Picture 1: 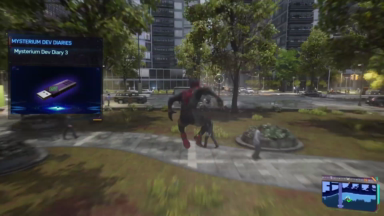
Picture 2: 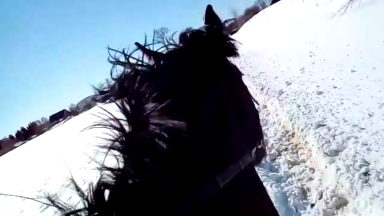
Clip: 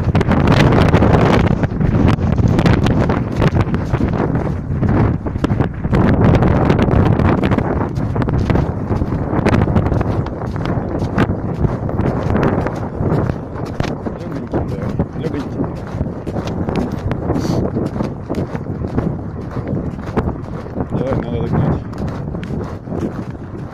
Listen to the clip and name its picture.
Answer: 2